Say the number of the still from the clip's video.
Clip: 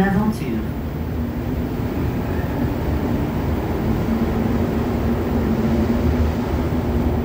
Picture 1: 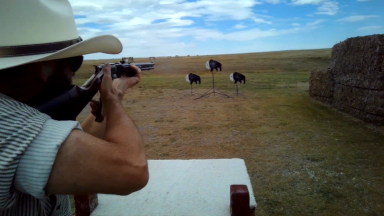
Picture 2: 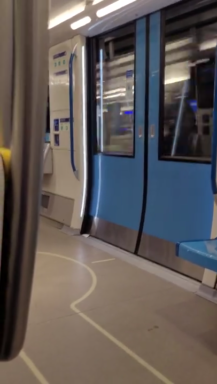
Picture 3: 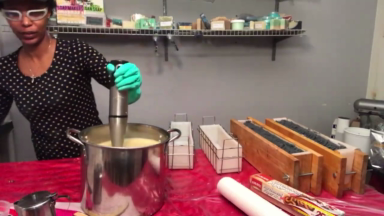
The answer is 2